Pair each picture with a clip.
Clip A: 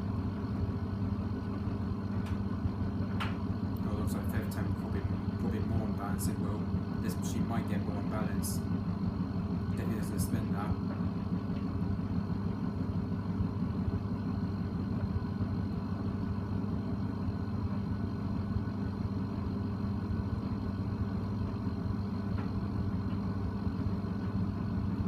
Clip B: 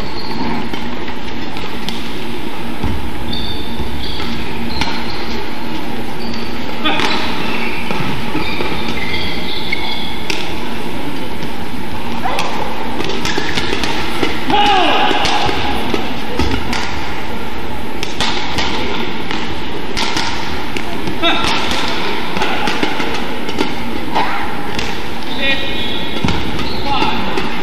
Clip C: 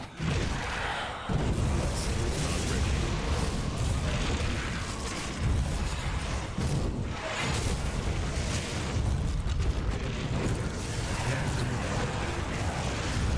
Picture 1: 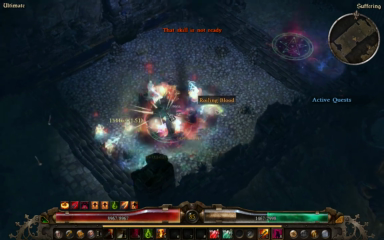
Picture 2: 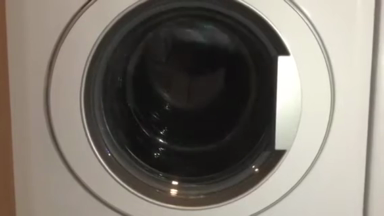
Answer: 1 C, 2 A